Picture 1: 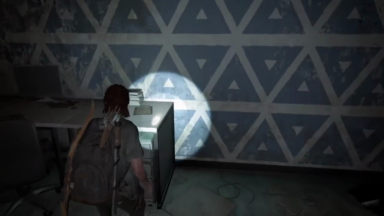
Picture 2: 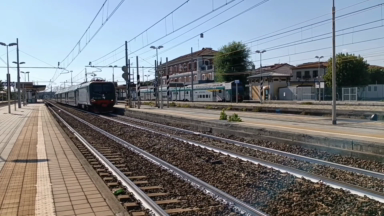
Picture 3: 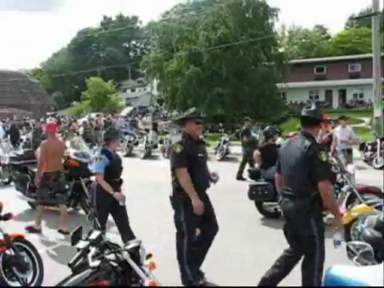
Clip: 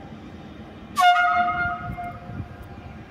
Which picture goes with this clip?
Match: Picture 2